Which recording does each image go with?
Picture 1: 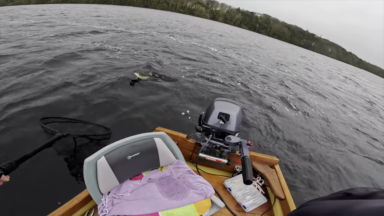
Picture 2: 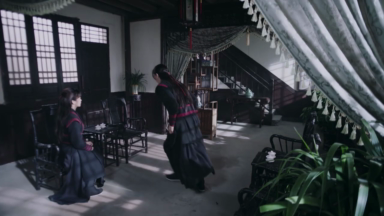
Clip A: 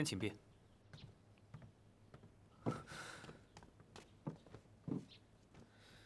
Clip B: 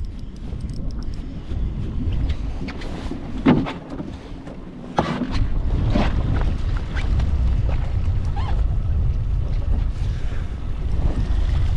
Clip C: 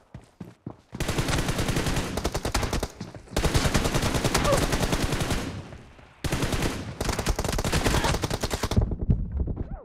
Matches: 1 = B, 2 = A